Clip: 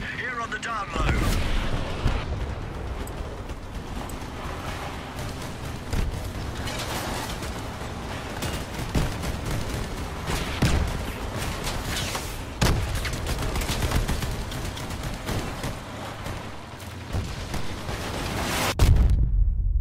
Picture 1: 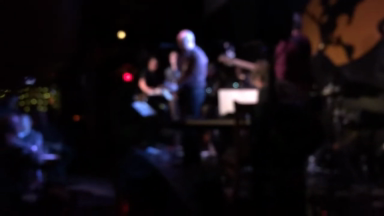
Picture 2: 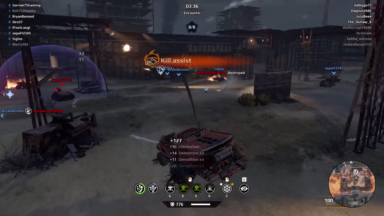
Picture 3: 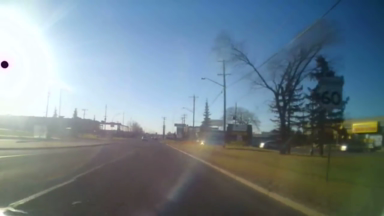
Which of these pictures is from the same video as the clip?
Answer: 2